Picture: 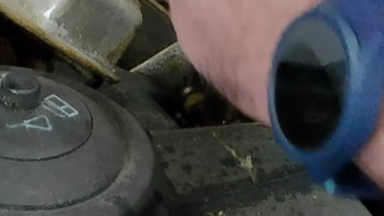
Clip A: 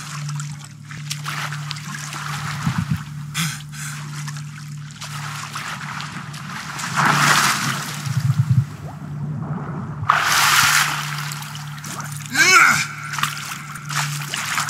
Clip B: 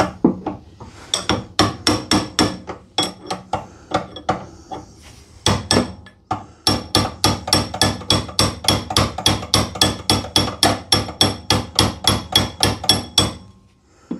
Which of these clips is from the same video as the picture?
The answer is B